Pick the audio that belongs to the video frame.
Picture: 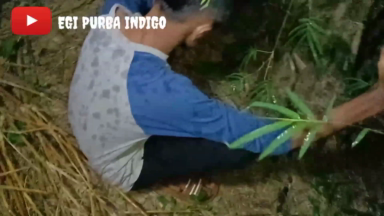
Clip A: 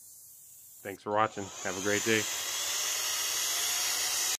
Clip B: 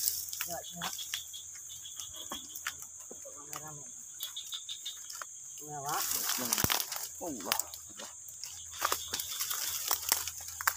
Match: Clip B